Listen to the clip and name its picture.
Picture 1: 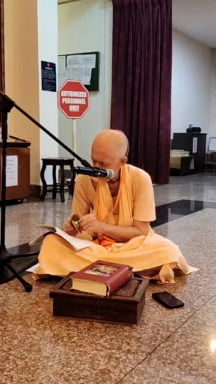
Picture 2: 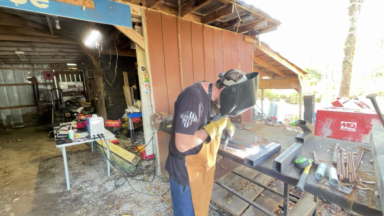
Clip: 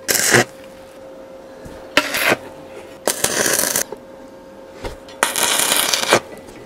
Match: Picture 2